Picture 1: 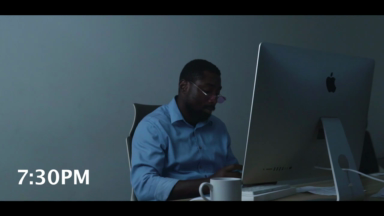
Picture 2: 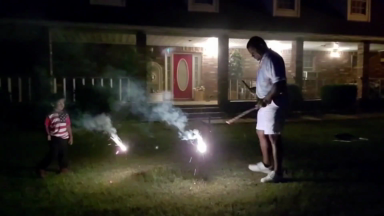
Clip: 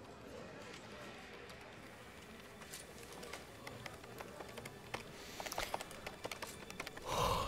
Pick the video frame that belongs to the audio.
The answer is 1